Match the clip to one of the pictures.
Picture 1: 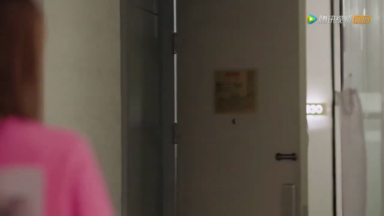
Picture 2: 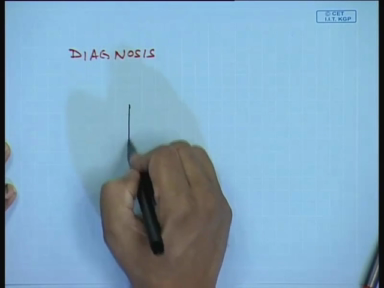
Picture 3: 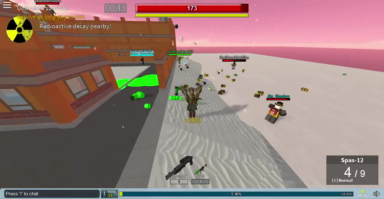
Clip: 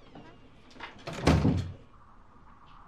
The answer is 1